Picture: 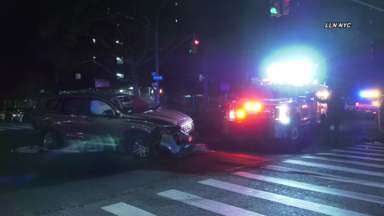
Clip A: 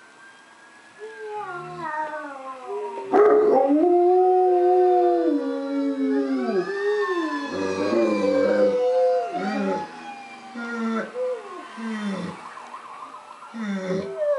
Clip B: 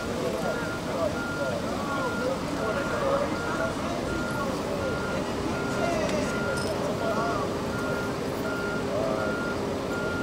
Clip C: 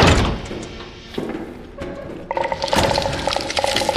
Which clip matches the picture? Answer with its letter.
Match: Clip B